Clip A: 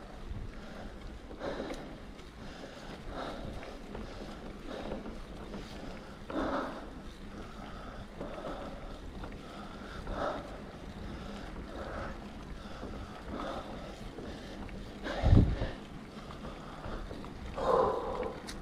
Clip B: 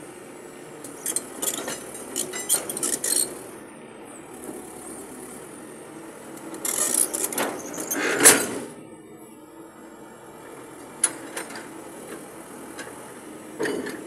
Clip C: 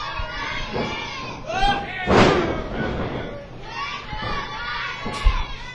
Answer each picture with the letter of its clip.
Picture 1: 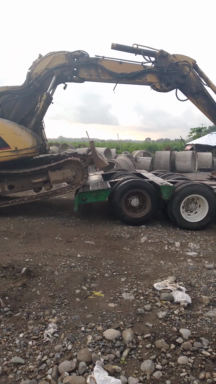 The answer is B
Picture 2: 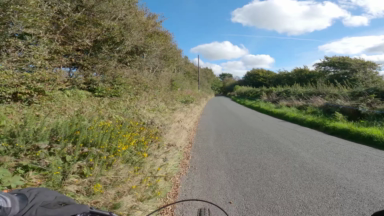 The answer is A